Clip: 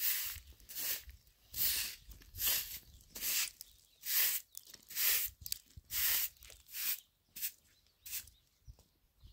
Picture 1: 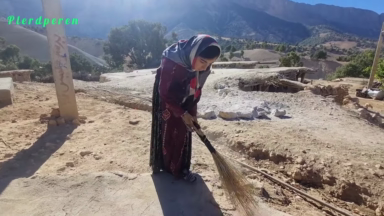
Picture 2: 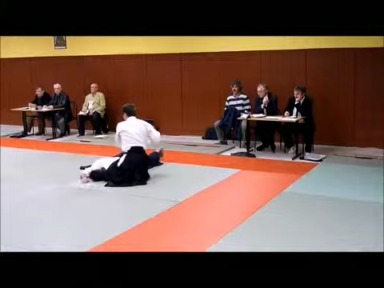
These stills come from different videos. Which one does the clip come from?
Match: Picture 1